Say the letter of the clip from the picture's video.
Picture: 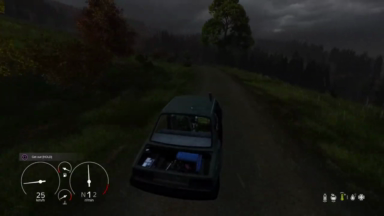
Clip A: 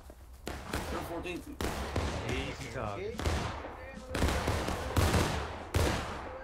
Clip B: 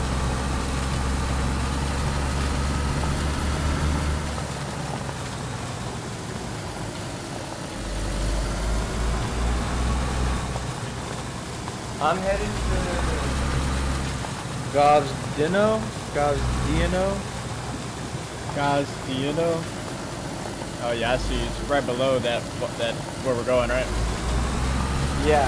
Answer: B